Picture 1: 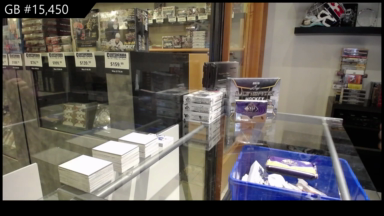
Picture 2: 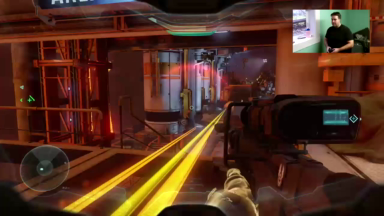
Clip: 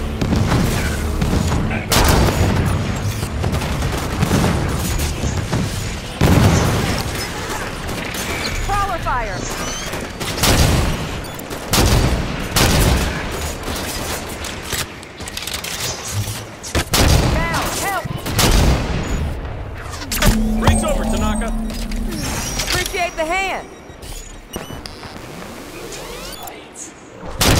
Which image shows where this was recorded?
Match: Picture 2